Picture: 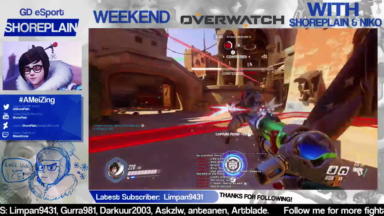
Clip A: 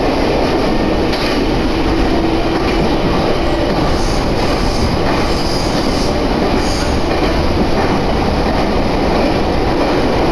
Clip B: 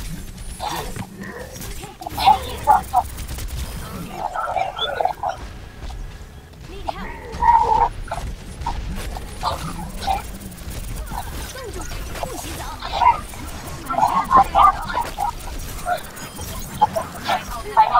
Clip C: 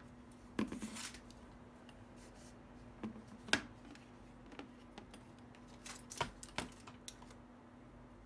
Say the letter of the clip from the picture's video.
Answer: B